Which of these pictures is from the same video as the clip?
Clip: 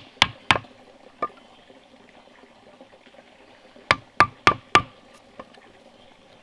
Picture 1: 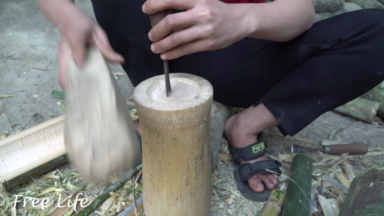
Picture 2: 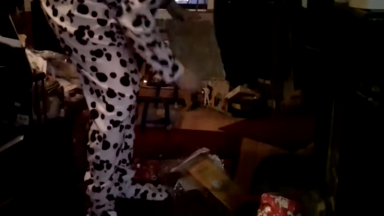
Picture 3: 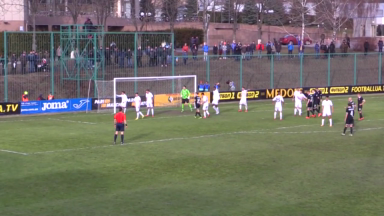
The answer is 1